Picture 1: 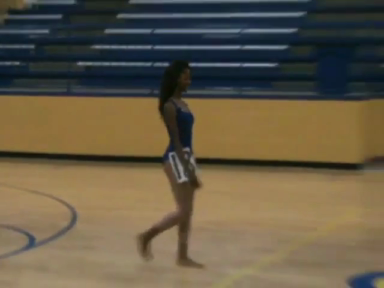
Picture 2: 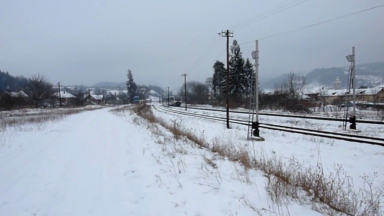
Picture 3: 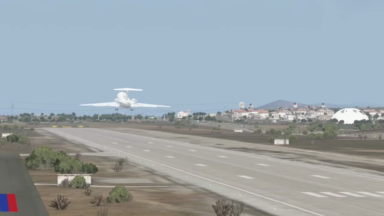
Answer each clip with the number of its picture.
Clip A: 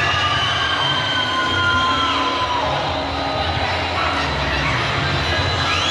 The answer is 1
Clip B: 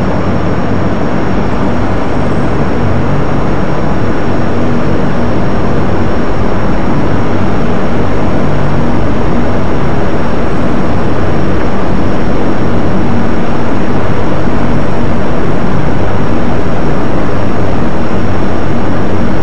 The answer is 3